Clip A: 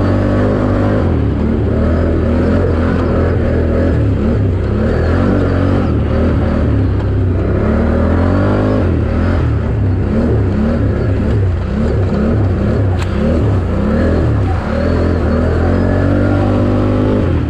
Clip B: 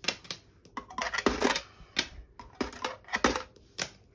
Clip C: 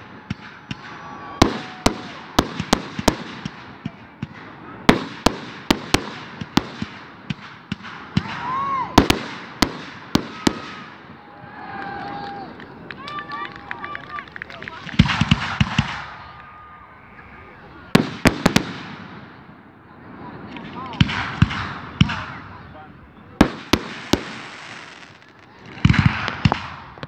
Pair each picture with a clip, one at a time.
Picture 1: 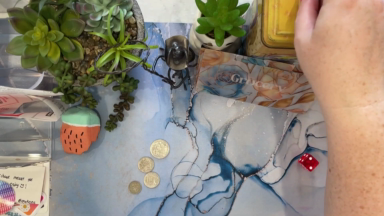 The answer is B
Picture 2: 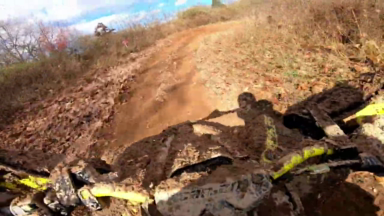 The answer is A